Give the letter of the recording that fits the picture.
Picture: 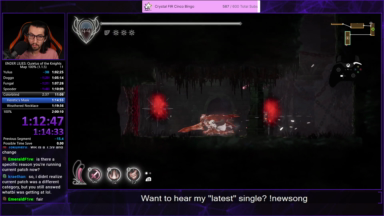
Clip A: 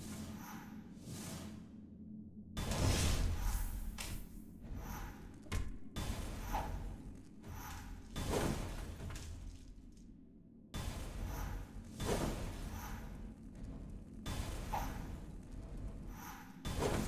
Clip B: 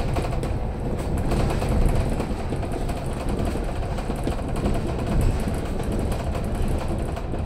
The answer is A